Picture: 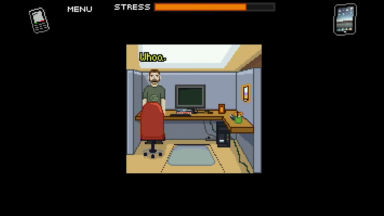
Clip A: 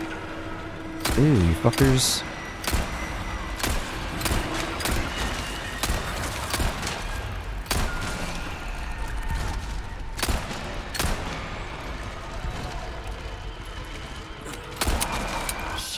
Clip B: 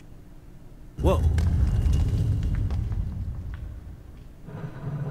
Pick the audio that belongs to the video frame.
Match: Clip B